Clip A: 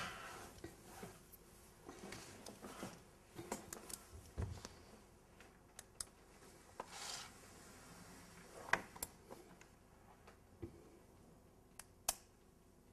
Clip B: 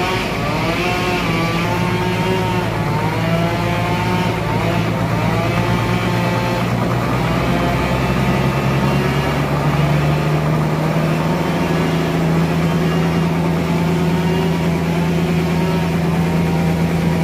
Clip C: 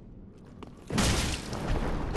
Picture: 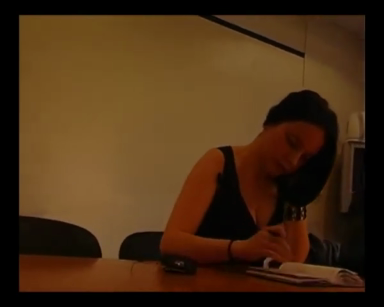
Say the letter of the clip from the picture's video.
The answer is A